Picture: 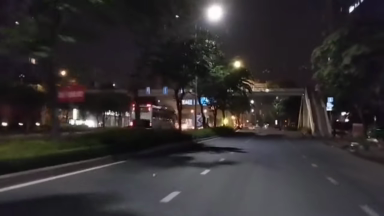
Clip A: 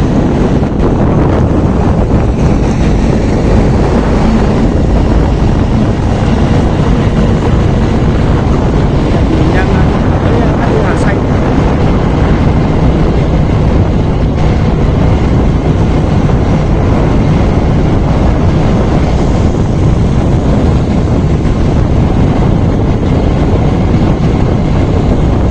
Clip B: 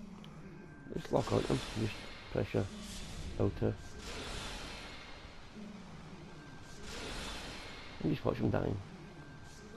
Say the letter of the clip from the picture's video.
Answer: A